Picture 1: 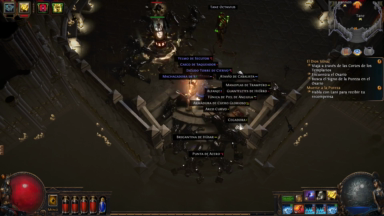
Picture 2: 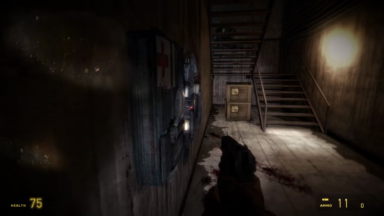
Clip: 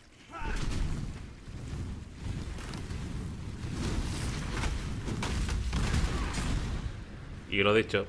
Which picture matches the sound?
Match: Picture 1